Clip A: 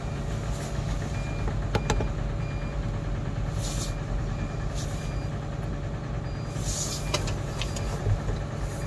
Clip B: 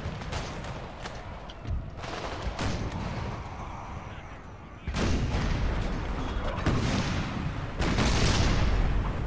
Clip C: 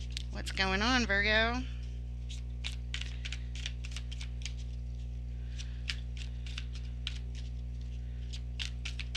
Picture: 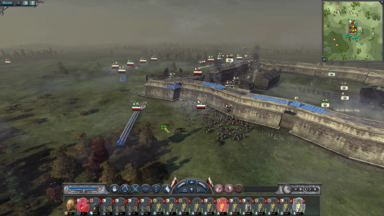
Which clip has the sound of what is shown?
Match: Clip B